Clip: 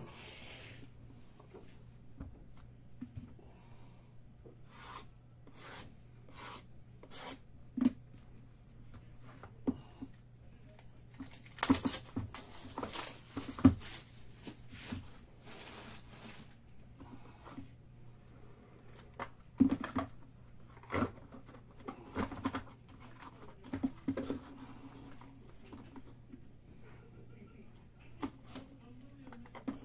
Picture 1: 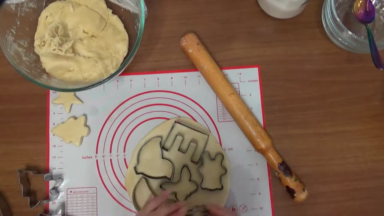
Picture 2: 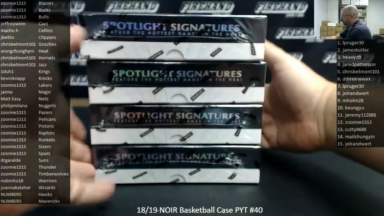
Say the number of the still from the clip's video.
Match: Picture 2